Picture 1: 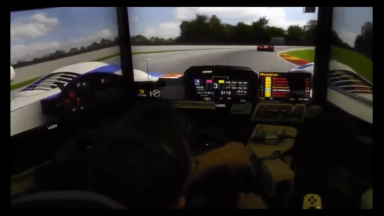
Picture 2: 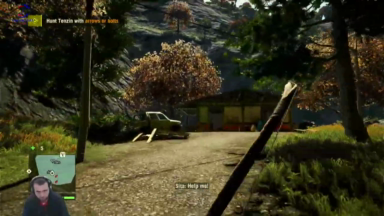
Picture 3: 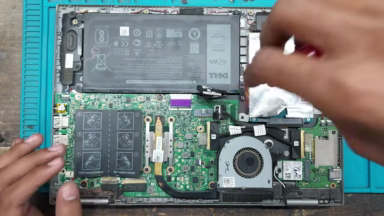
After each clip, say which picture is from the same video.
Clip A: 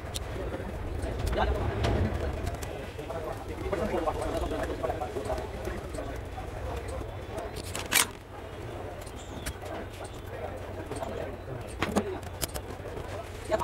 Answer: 3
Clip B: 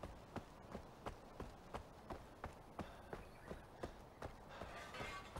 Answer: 2